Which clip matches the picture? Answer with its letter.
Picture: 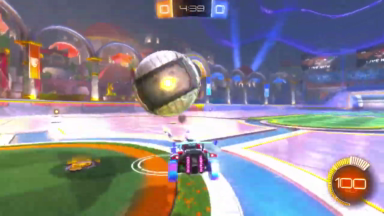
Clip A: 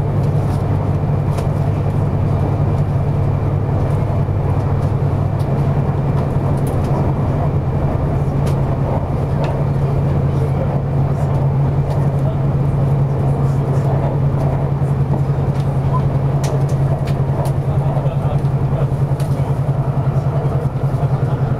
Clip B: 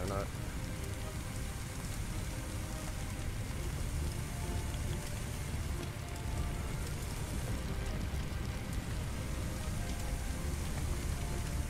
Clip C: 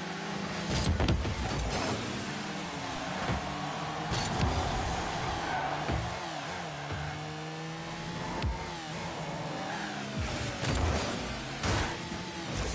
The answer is C